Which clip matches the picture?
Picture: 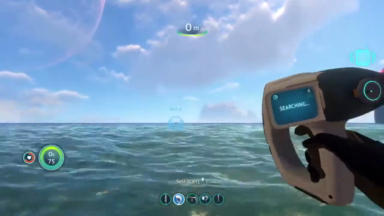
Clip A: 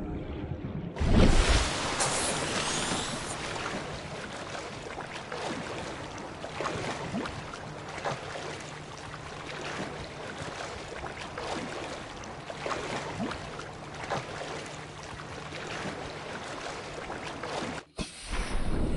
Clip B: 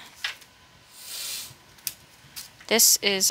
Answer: A